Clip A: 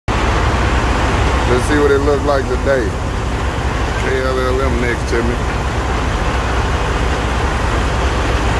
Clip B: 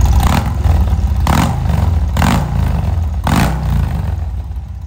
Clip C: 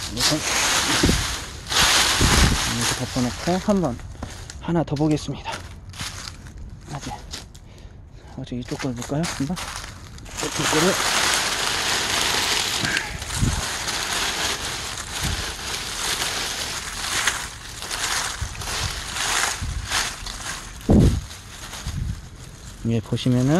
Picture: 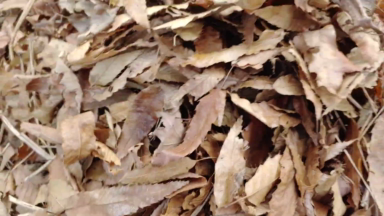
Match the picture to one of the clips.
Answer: C